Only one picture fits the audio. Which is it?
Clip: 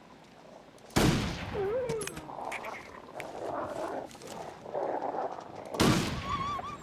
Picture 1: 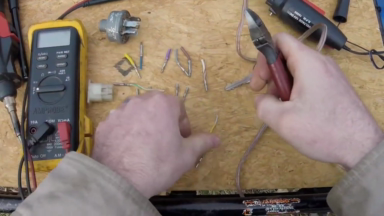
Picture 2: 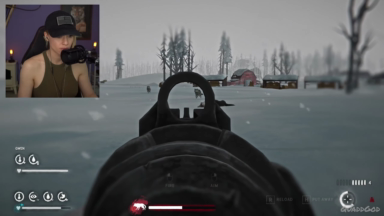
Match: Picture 2